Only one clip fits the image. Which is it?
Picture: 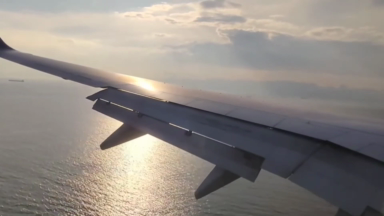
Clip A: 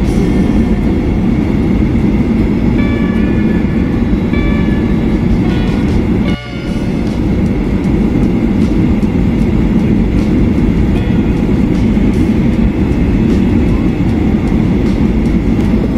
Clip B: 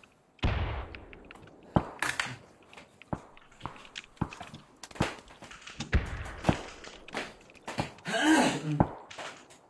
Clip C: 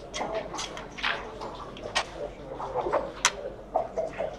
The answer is A